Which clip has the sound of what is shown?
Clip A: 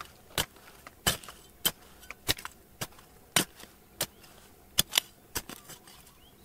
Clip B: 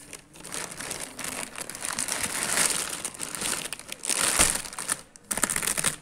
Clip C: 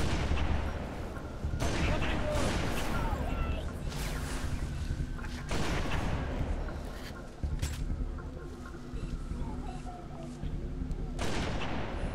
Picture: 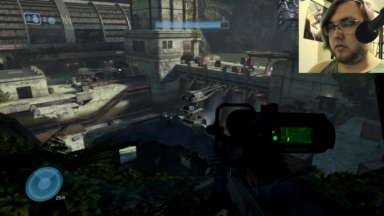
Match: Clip C